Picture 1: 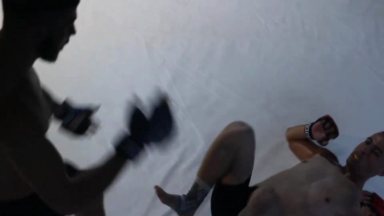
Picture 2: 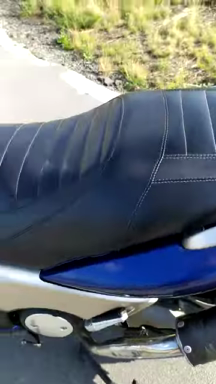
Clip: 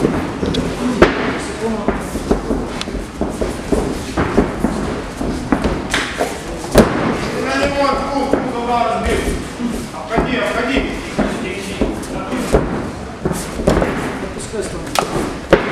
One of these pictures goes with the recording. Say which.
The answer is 1